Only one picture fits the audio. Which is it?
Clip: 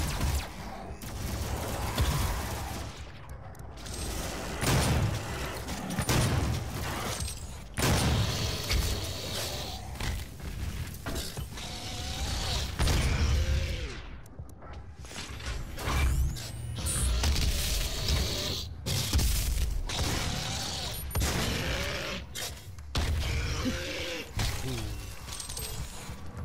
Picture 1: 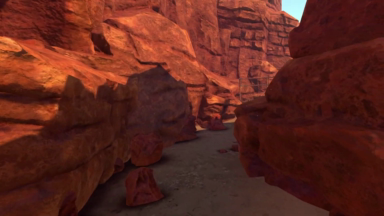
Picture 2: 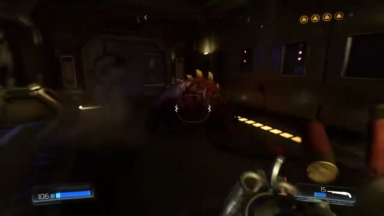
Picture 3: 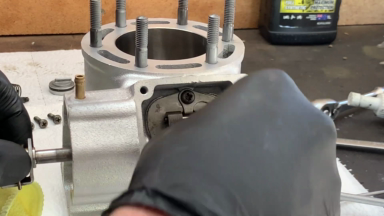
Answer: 2